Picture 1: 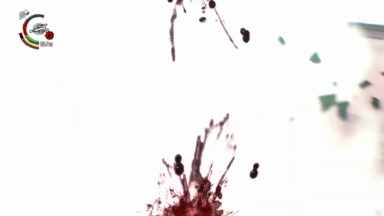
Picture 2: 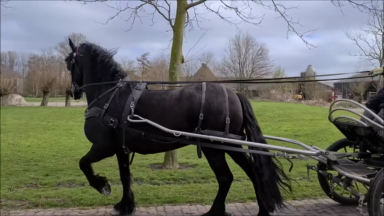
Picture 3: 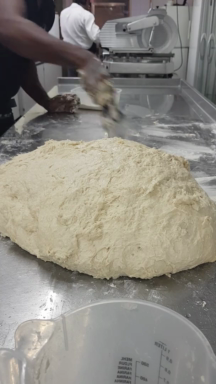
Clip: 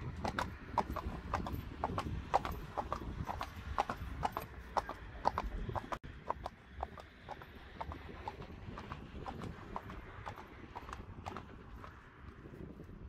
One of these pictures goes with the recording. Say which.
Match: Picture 2